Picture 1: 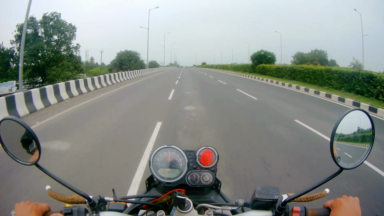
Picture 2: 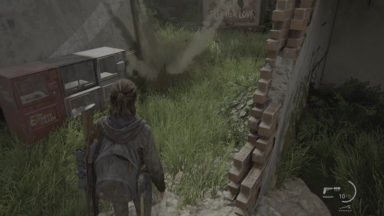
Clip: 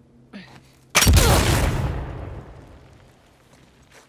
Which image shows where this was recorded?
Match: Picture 2